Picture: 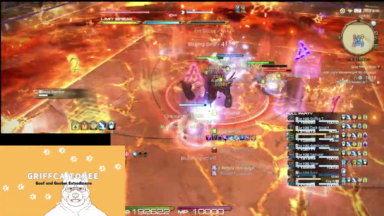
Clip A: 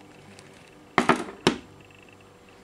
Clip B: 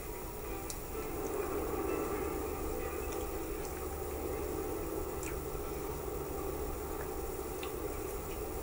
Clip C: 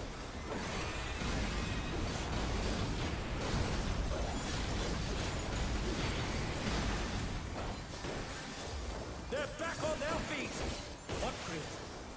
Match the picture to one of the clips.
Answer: C